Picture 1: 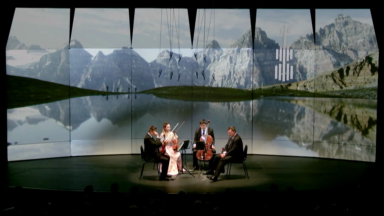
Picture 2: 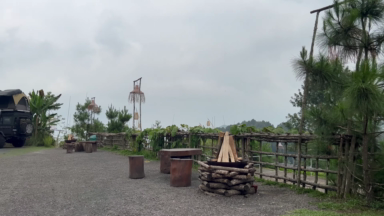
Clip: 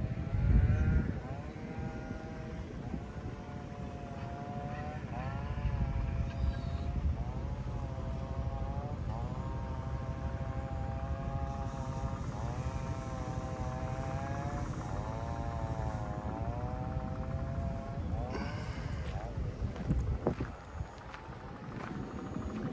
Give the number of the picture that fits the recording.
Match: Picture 2